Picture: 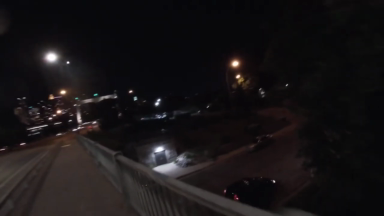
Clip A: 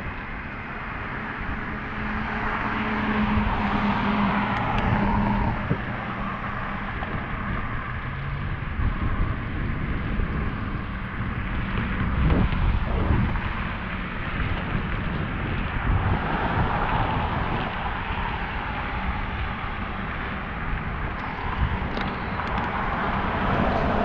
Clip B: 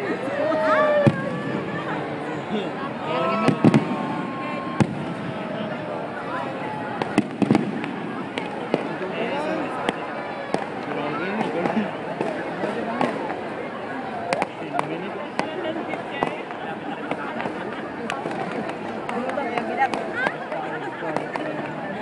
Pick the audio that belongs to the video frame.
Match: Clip A